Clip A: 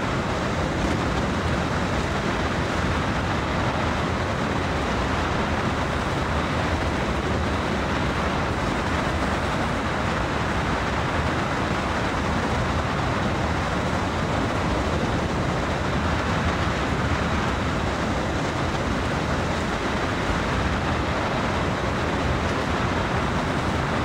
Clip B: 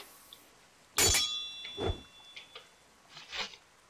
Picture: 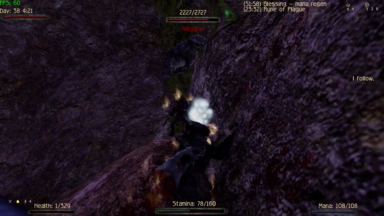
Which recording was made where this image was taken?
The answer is B